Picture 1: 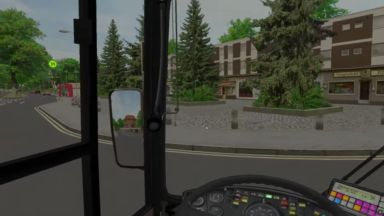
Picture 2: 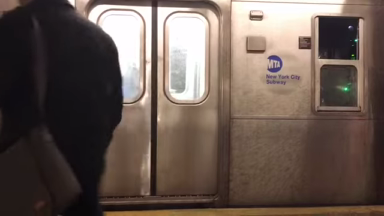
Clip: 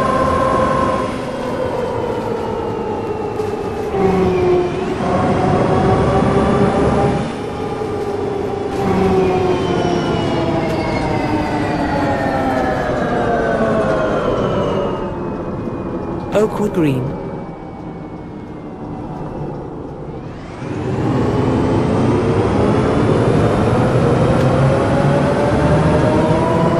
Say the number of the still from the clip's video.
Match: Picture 1